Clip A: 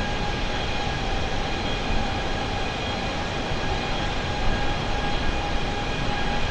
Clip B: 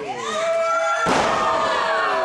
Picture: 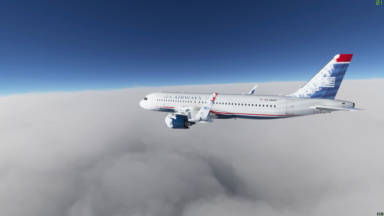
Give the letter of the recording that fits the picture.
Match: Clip A